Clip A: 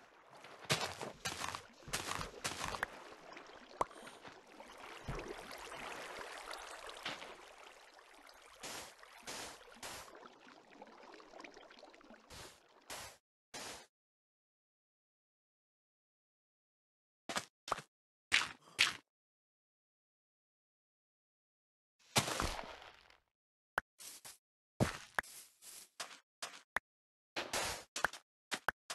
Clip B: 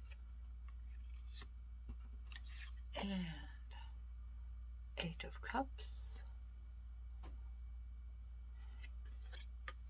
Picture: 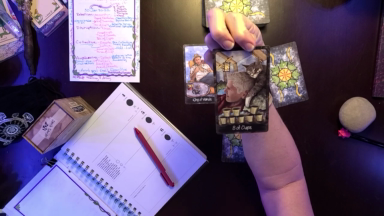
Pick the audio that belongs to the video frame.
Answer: B